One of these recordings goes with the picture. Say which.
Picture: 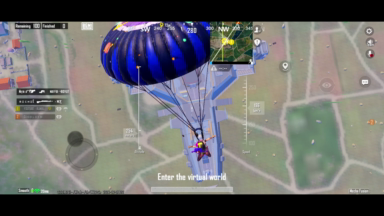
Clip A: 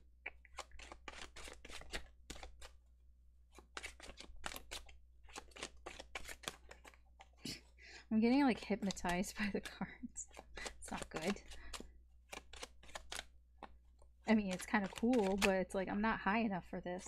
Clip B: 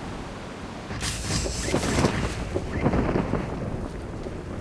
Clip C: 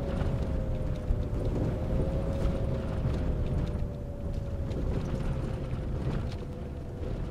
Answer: B